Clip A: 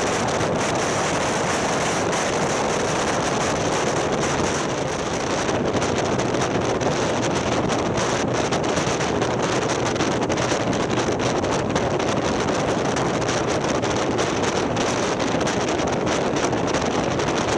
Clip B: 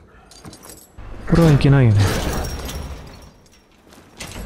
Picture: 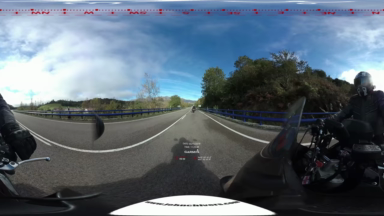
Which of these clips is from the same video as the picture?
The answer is A